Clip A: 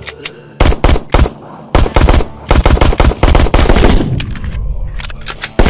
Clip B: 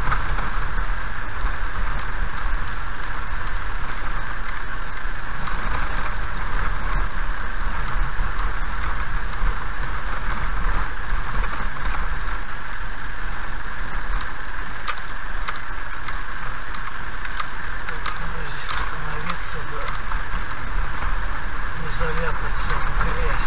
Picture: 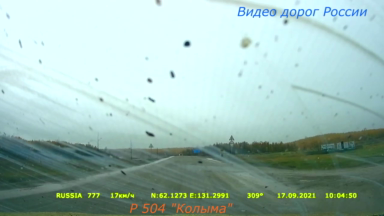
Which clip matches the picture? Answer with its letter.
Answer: B